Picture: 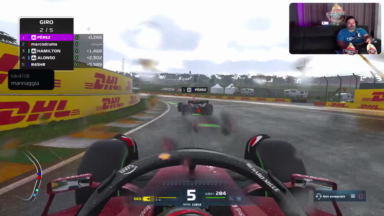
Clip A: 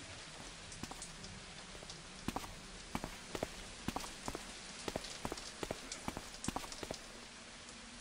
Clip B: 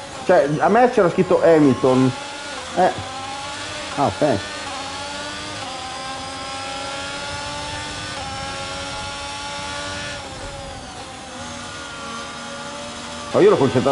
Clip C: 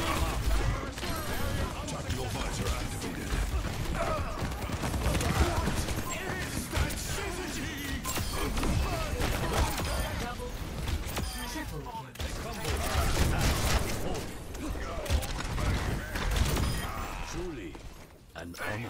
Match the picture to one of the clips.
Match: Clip B